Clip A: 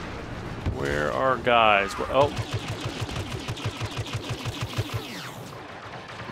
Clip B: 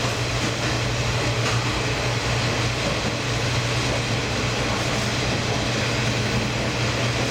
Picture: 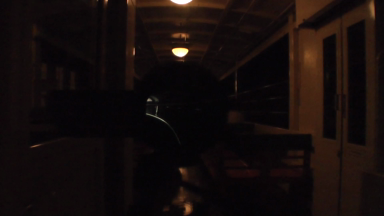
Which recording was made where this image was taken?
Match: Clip B